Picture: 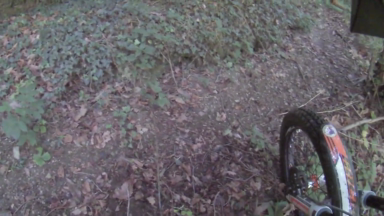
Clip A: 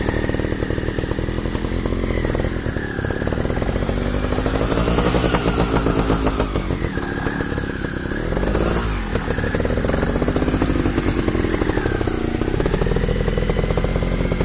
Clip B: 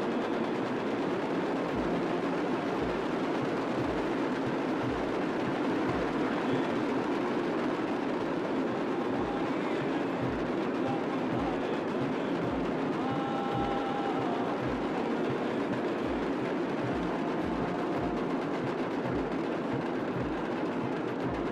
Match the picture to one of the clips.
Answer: A